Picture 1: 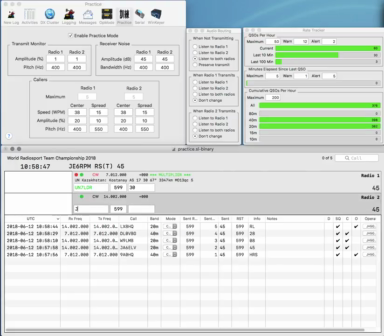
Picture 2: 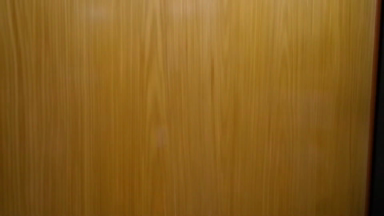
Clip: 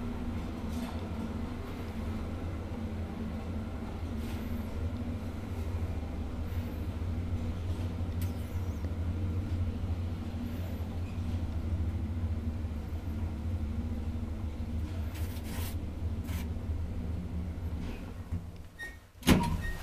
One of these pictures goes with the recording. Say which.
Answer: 2